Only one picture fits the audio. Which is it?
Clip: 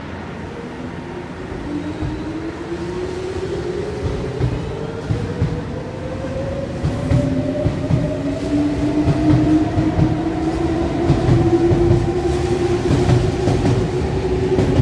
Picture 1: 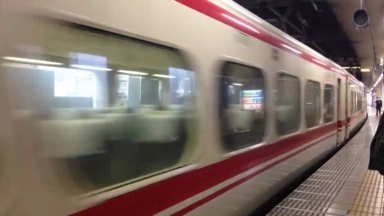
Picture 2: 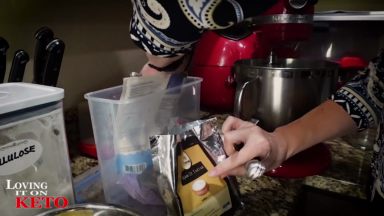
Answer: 1